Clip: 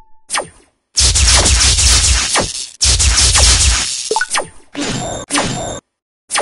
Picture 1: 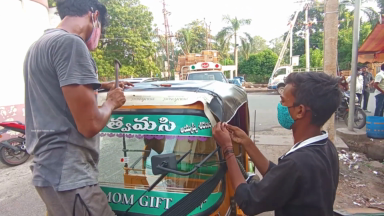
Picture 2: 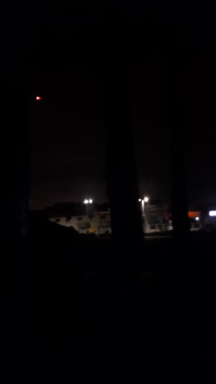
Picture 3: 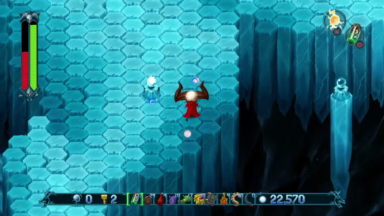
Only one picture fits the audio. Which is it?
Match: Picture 3